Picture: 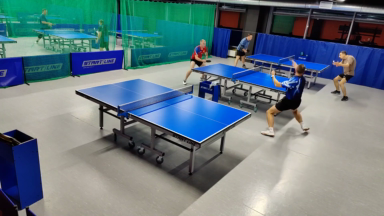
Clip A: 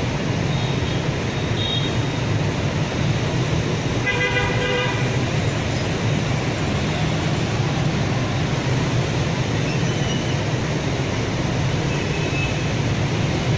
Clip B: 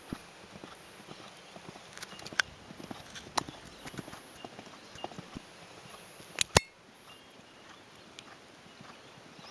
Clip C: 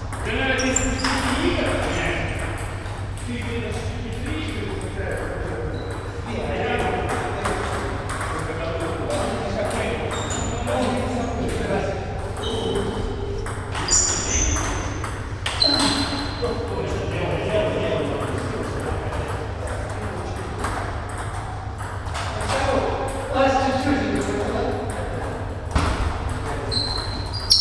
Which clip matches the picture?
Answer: C